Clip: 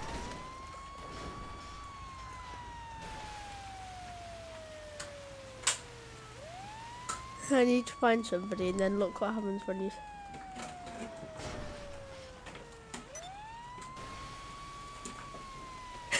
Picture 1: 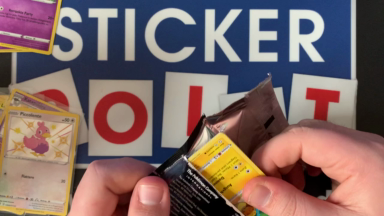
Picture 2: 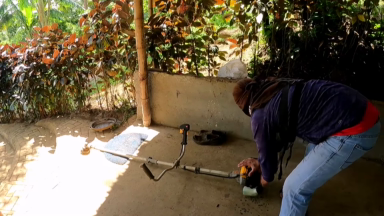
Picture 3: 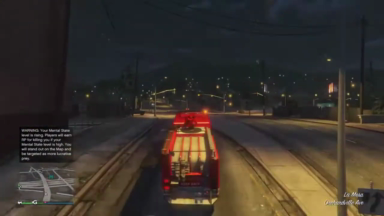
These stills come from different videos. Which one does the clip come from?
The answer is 3